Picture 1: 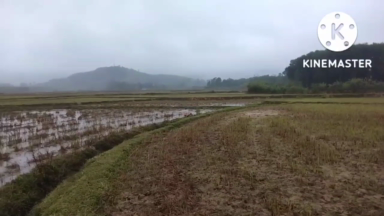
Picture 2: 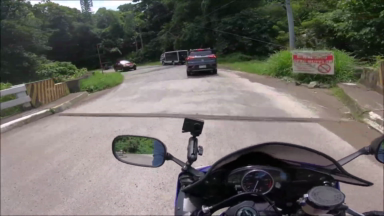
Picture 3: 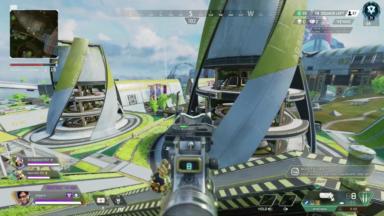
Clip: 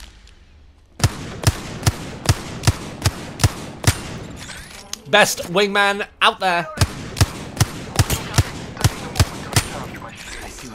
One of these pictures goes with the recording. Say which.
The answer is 3